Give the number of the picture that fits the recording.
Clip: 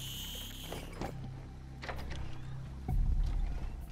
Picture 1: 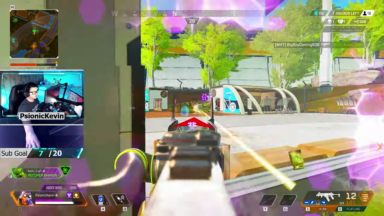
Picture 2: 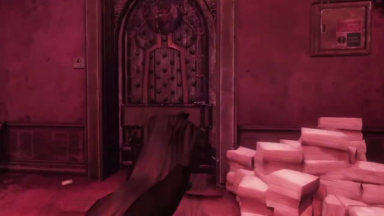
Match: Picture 2